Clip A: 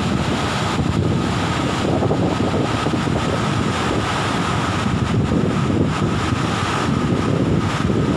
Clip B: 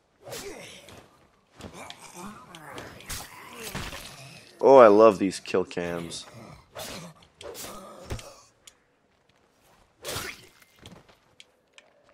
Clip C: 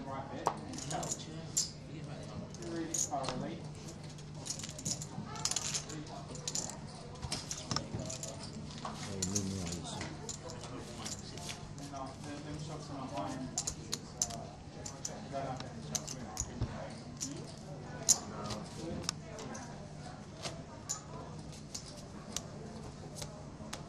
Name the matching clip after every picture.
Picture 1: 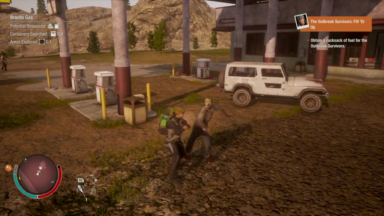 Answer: B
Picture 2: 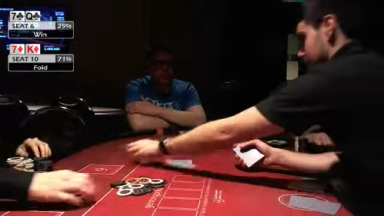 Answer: C